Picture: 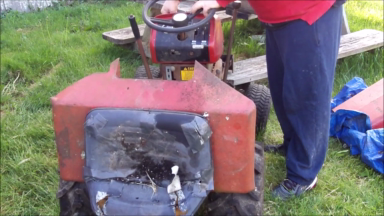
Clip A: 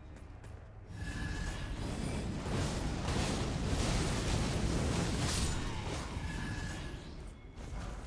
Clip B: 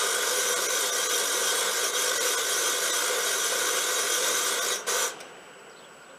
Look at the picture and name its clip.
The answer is B